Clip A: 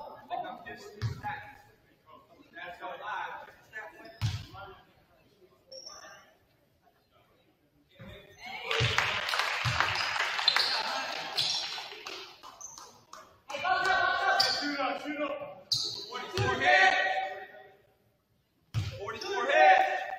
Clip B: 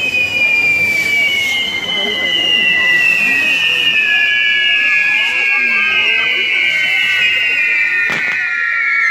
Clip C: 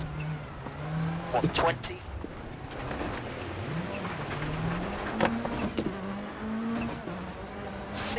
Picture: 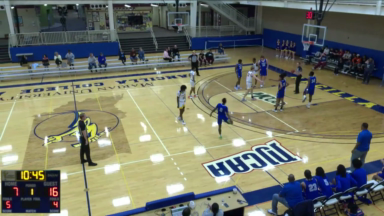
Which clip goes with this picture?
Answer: A